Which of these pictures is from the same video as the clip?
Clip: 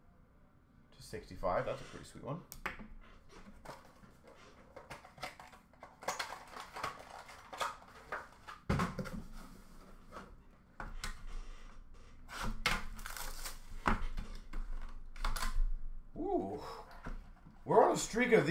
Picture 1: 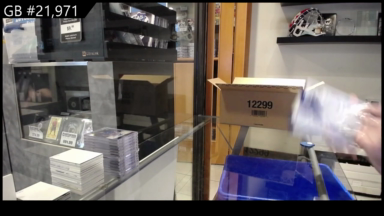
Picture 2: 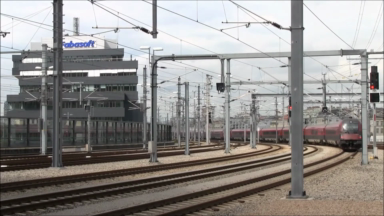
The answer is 1